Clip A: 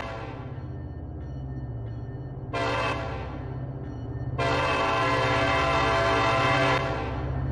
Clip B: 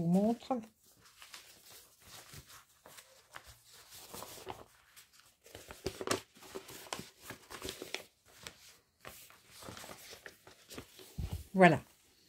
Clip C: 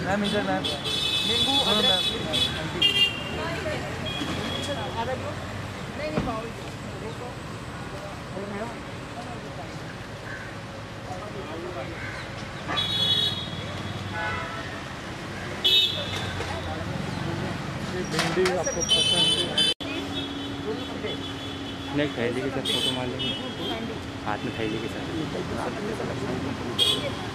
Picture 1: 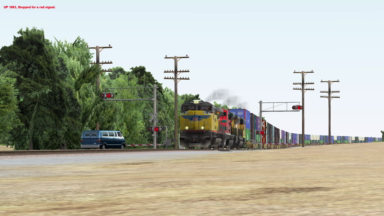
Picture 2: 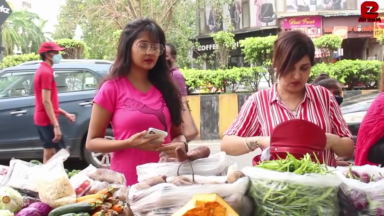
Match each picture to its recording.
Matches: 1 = A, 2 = C